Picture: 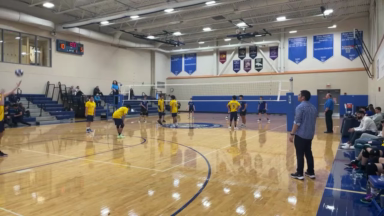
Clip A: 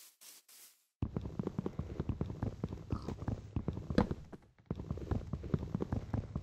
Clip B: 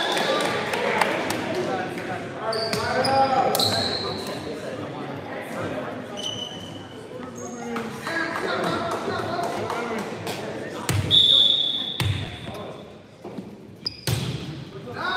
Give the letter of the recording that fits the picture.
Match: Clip B